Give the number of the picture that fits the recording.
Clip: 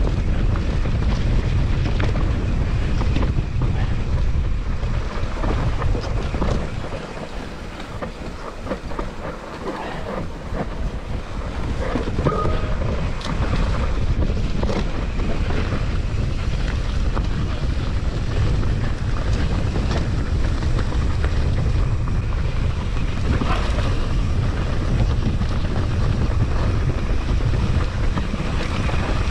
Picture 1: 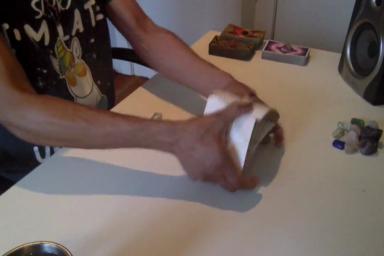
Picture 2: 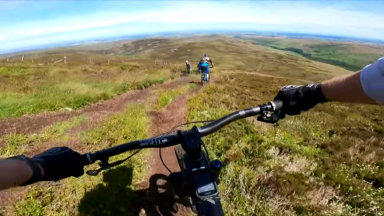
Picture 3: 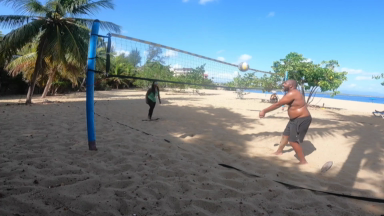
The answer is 2